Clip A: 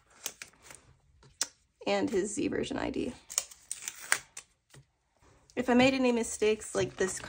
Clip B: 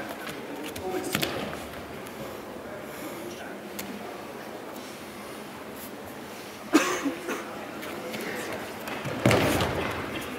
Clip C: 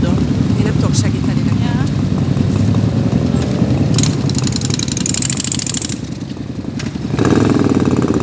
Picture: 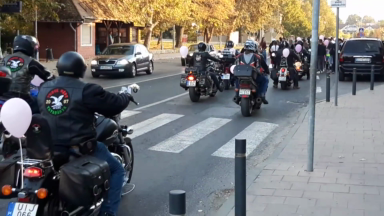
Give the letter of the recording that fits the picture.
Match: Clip C